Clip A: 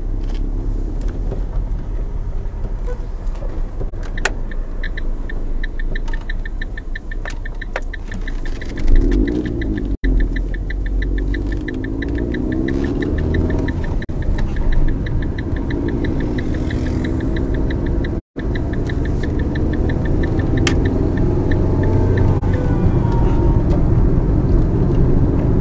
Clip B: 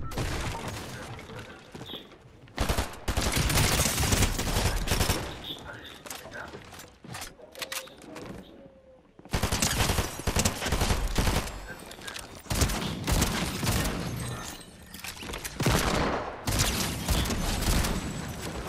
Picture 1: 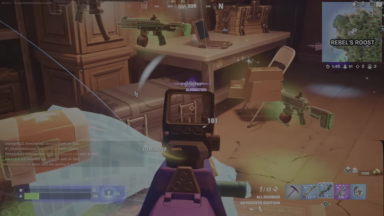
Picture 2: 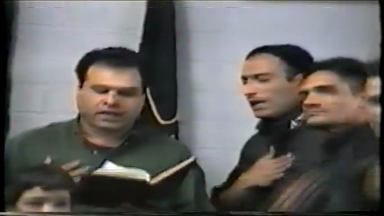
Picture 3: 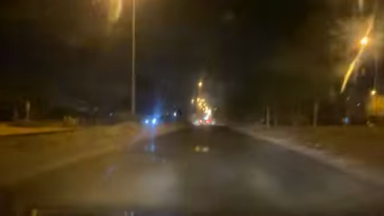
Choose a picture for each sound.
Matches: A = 3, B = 1